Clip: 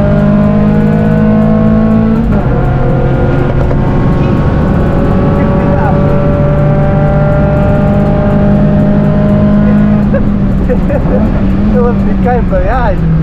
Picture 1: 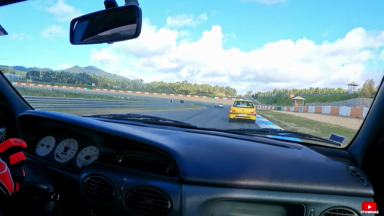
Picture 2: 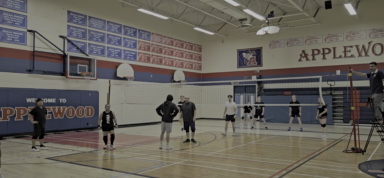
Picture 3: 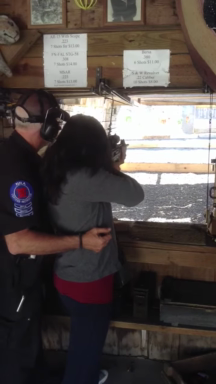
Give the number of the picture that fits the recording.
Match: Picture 1